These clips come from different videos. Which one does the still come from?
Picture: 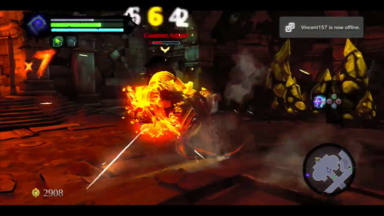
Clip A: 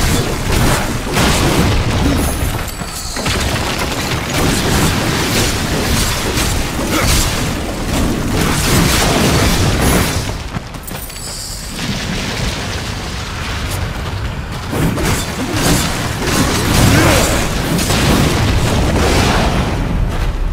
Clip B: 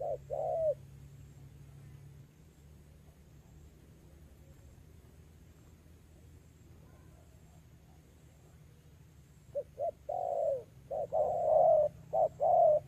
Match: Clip A